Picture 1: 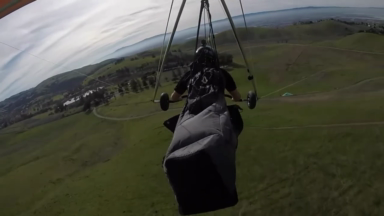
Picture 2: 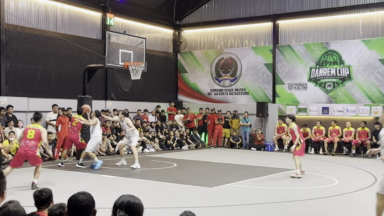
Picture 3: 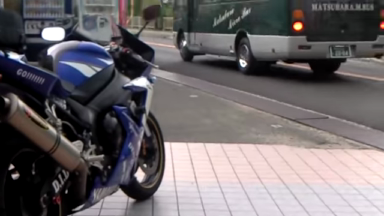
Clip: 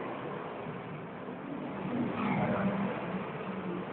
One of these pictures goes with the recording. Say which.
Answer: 3